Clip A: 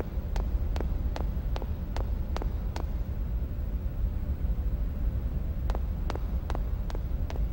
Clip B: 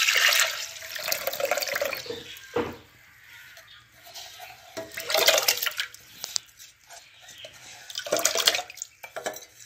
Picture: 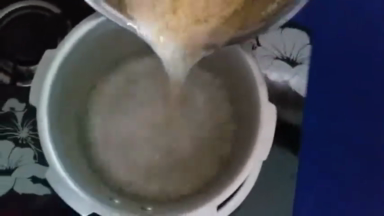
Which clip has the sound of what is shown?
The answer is B